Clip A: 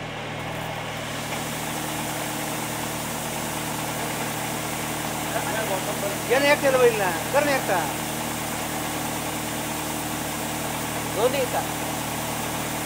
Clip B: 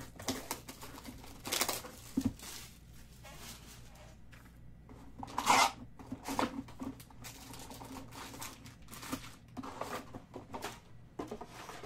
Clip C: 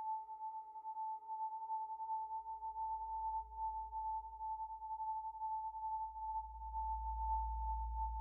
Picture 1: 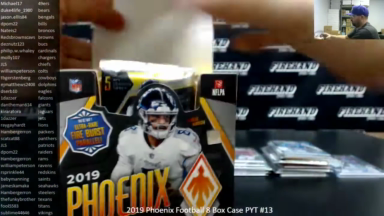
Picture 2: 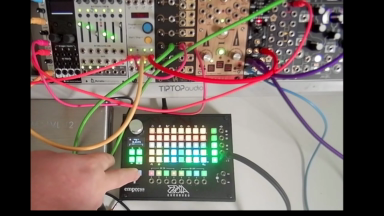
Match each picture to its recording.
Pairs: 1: B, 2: C